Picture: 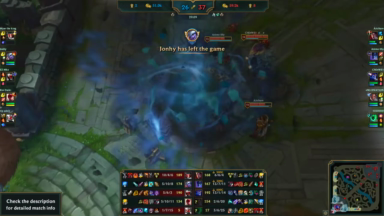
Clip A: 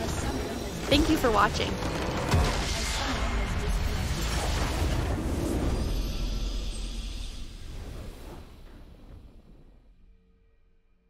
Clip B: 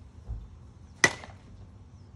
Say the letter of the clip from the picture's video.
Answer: A